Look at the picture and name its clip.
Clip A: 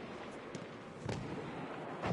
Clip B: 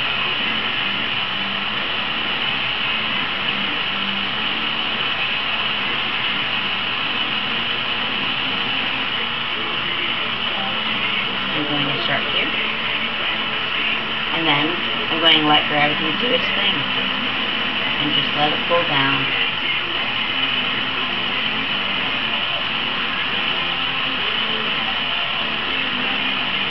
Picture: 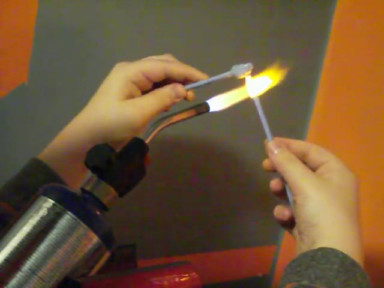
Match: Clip B